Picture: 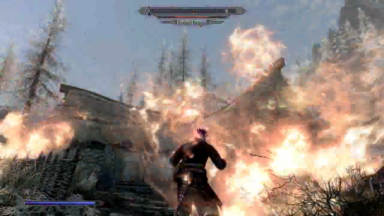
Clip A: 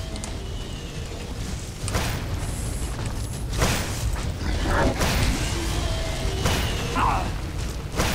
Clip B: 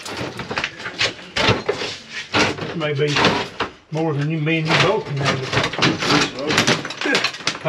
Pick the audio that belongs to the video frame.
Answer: A